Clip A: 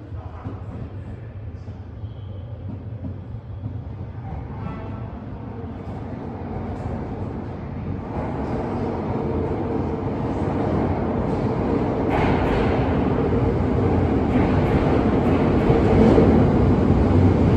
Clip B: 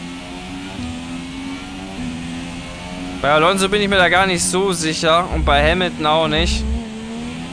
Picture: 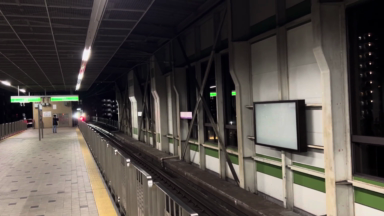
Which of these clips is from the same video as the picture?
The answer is A